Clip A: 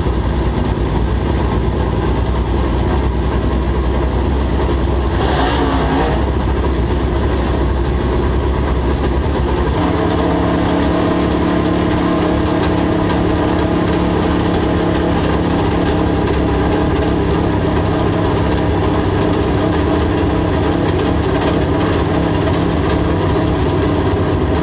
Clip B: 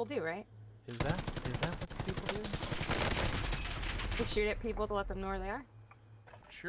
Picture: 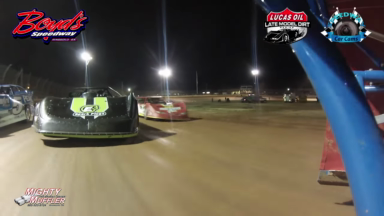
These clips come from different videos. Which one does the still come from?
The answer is A